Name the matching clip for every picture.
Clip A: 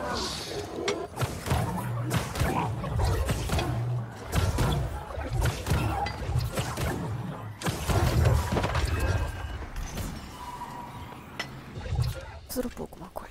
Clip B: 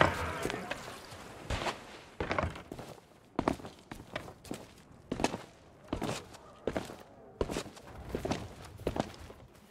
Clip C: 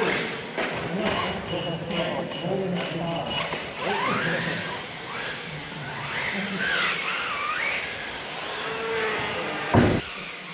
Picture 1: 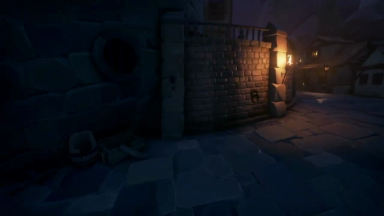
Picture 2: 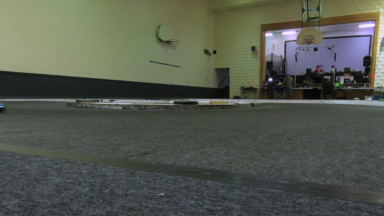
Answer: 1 B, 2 C